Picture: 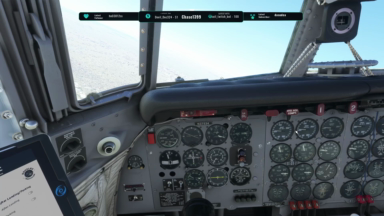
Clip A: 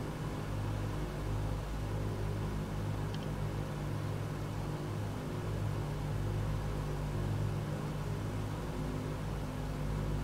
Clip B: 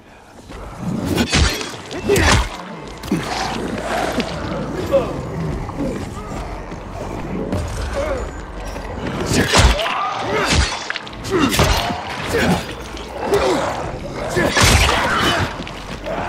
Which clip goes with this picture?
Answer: A